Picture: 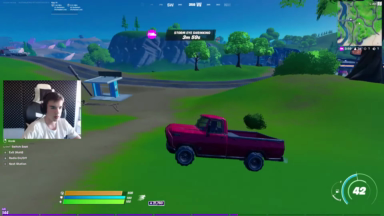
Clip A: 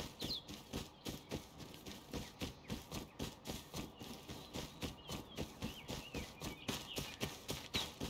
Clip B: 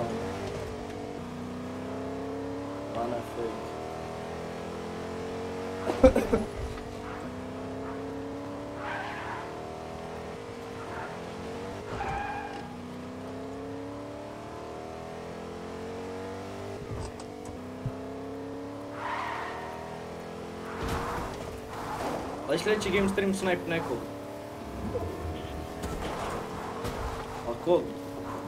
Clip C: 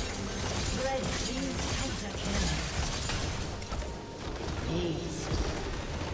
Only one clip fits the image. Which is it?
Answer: B